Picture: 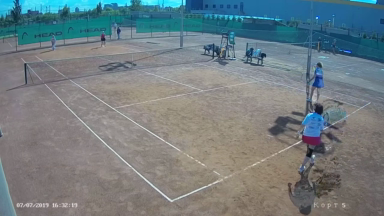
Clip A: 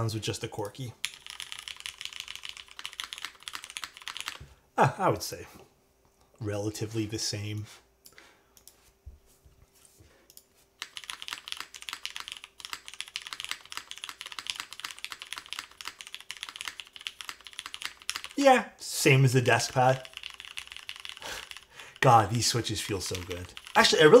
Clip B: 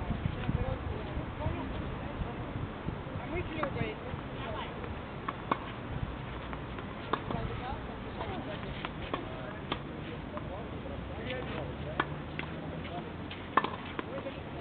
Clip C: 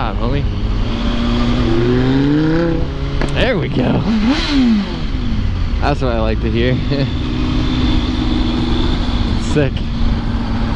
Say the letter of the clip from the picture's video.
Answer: B